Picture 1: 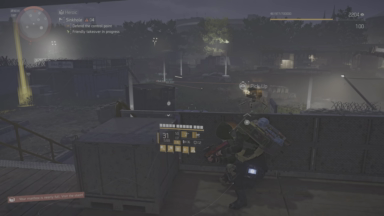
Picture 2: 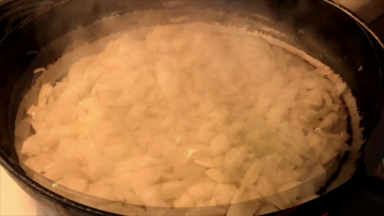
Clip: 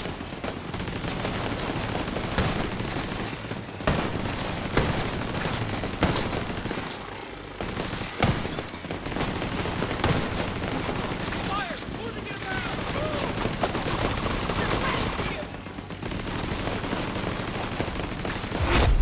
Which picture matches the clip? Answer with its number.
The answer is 1